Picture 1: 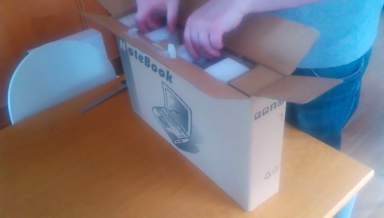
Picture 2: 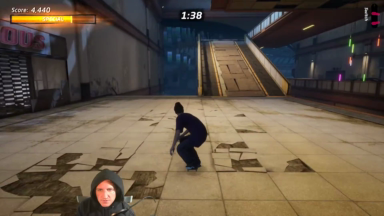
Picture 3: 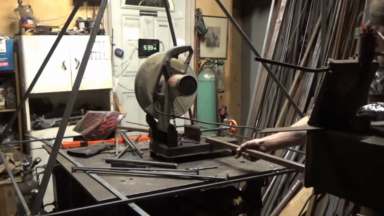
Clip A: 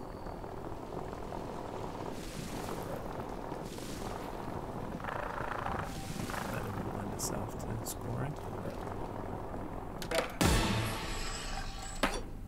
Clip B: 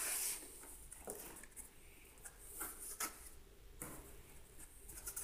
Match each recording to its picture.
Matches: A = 2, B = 1